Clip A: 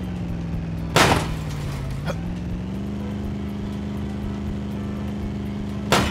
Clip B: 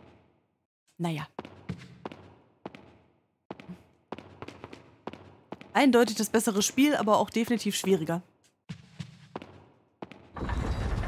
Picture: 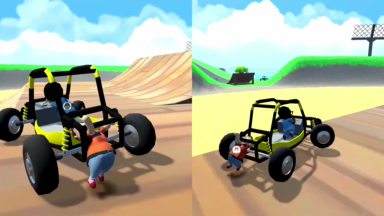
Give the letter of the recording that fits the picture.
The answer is A